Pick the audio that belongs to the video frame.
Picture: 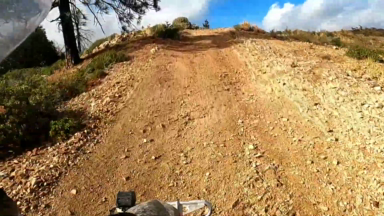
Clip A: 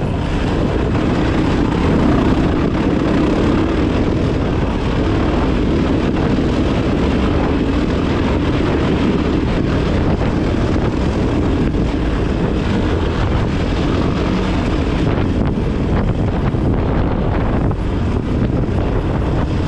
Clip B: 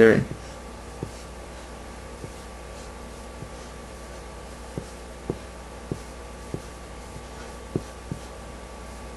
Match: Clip A